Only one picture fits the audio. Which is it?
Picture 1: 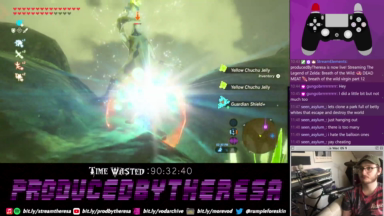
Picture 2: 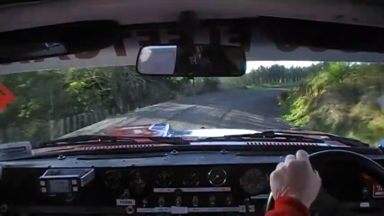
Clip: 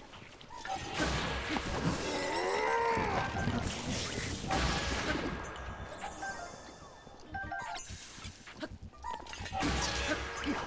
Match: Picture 1